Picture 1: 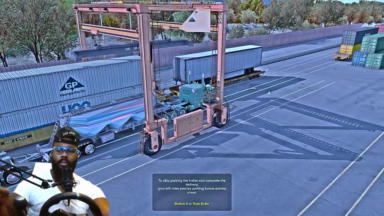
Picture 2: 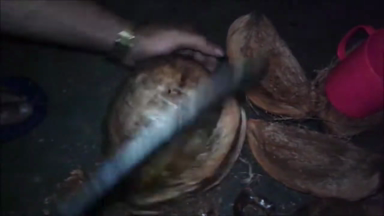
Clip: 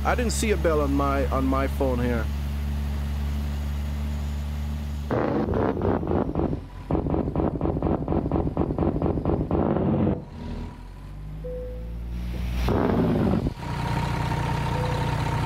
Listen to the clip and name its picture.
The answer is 1